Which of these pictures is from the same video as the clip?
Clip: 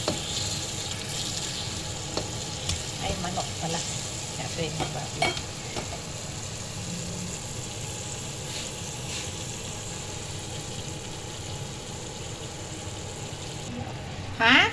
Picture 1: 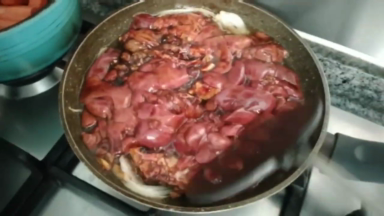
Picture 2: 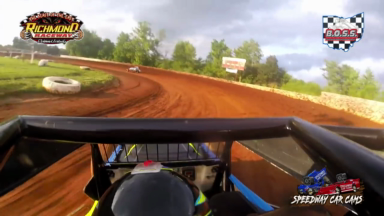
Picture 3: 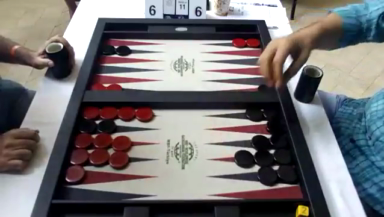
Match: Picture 1